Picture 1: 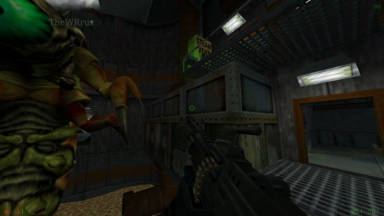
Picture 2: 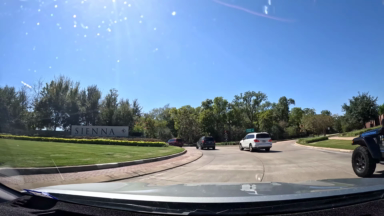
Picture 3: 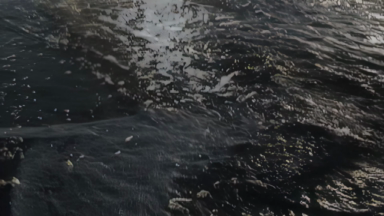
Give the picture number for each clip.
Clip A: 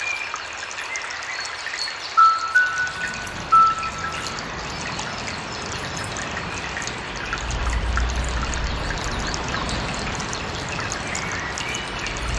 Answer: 3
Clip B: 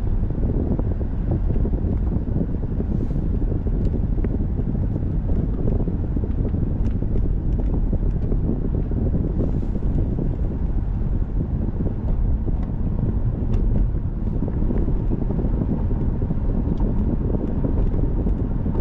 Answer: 2